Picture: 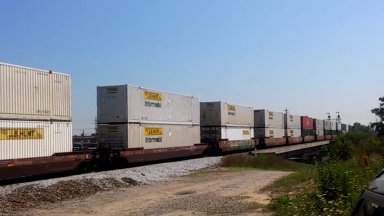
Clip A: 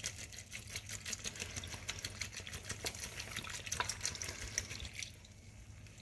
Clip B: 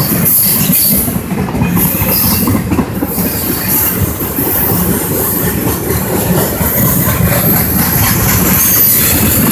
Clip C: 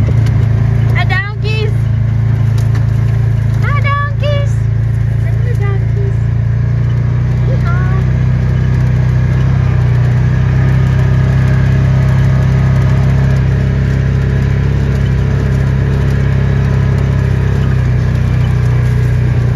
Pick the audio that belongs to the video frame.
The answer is B